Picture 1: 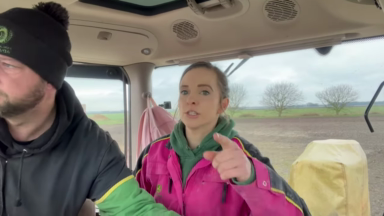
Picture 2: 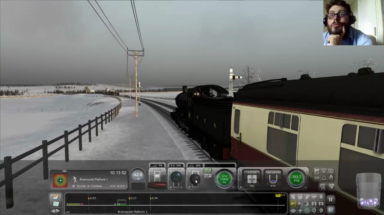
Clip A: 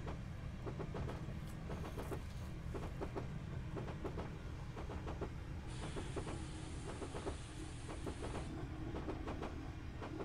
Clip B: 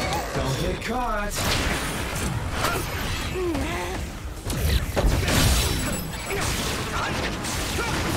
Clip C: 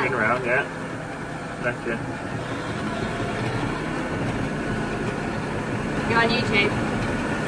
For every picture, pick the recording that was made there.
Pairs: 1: C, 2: A